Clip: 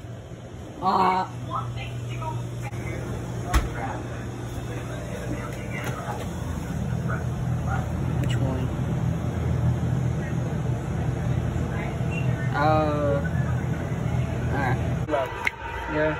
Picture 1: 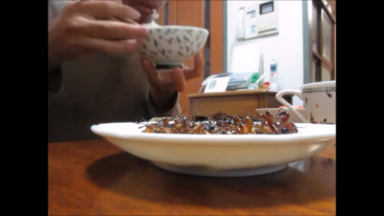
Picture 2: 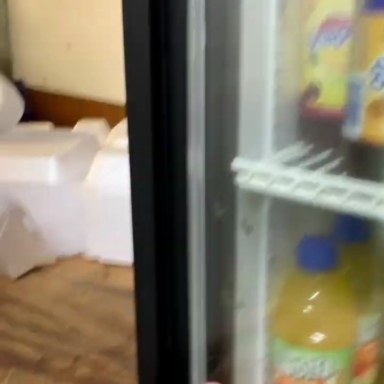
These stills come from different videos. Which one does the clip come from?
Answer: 2